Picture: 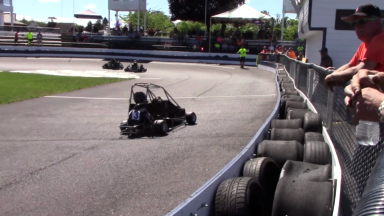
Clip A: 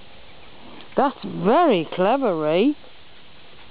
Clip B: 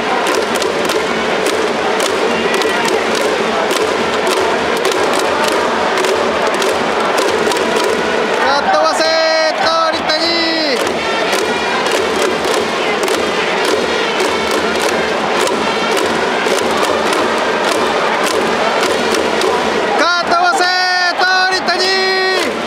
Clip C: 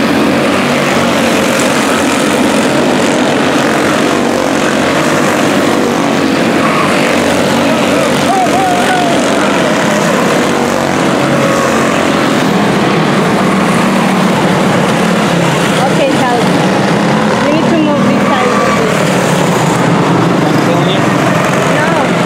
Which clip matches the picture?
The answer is C